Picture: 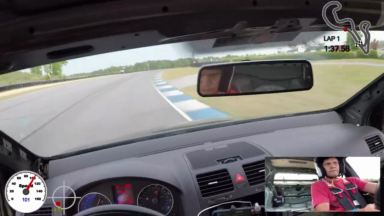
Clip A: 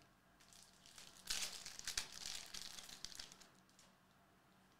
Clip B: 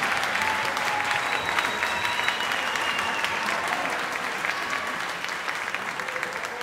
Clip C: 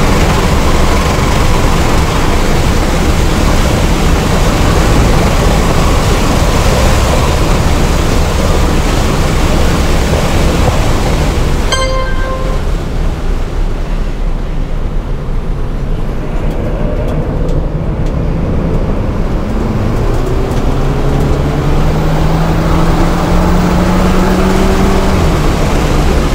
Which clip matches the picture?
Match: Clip C